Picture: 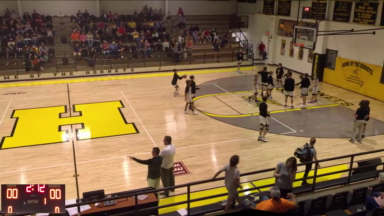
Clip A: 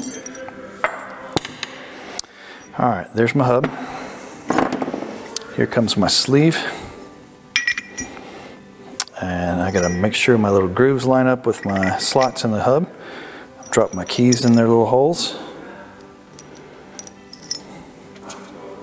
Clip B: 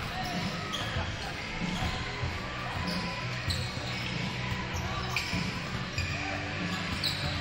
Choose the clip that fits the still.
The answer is B